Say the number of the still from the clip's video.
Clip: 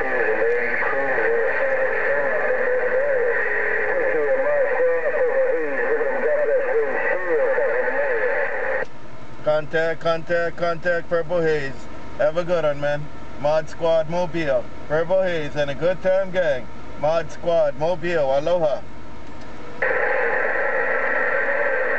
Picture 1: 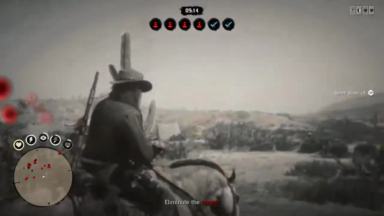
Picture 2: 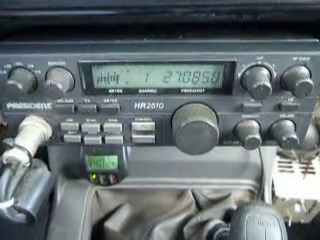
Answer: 2